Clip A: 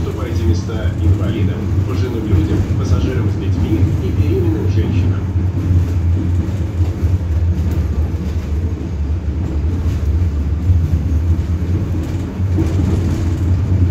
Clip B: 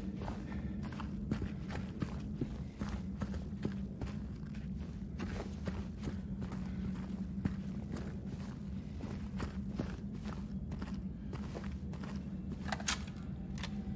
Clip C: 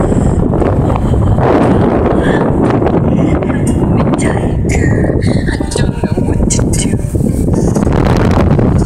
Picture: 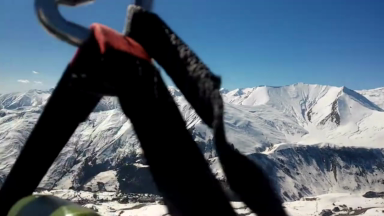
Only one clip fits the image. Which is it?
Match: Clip C